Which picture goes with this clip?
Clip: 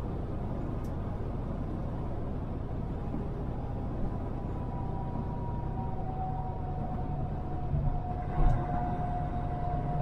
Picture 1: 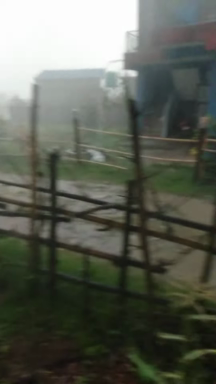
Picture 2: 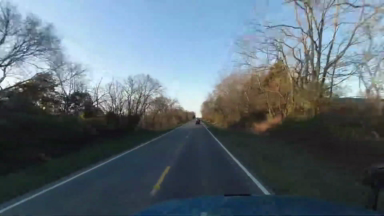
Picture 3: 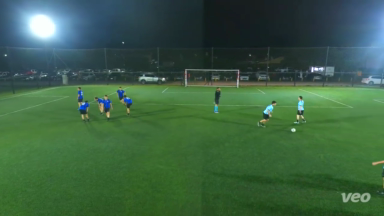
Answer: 2